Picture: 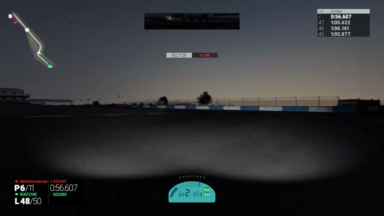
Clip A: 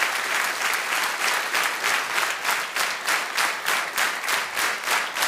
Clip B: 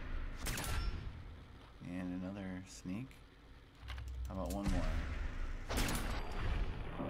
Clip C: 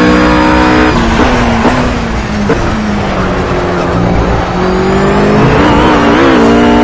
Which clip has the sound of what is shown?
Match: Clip C